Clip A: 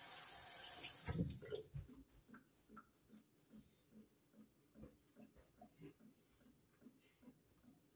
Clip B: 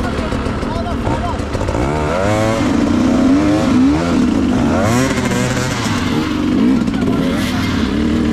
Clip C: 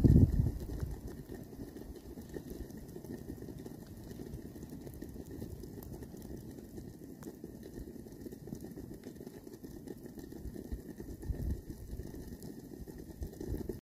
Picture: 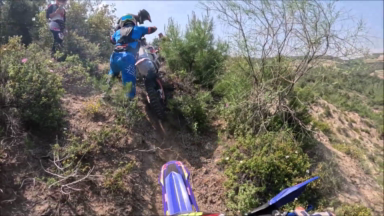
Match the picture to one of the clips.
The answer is B